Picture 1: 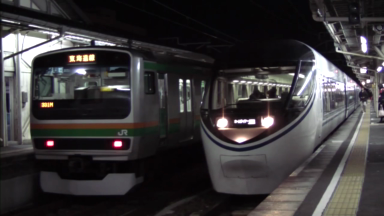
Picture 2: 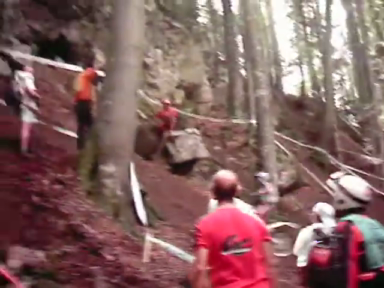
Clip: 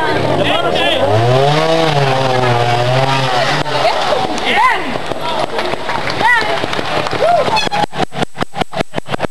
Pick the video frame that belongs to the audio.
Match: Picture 2